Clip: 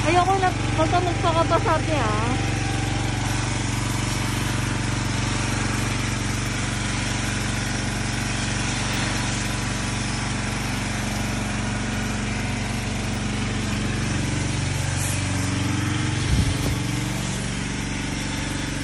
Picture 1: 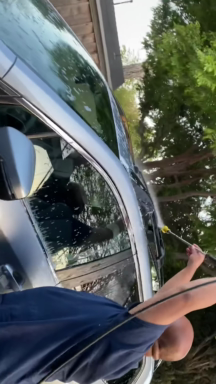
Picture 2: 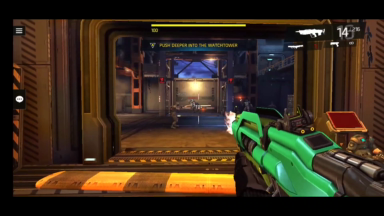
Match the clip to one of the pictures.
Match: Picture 1